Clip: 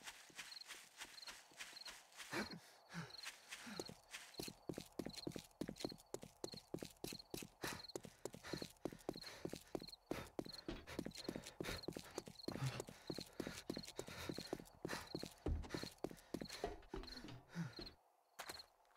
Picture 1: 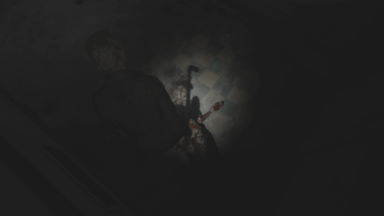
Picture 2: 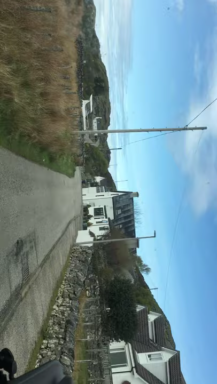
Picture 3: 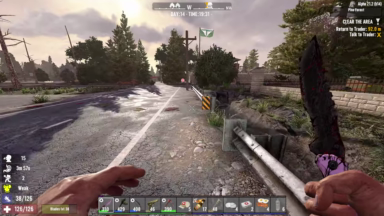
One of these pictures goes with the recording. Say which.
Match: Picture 3